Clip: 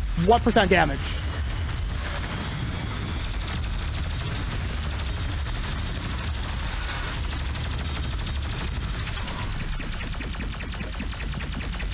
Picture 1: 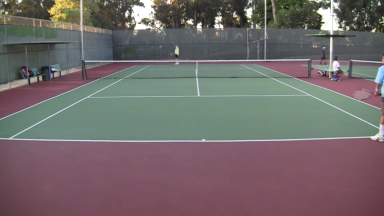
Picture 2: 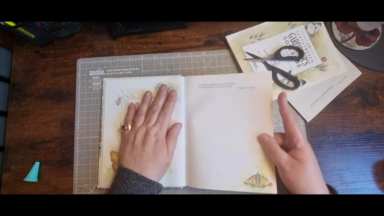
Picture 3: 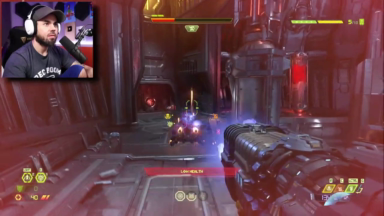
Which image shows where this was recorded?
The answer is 3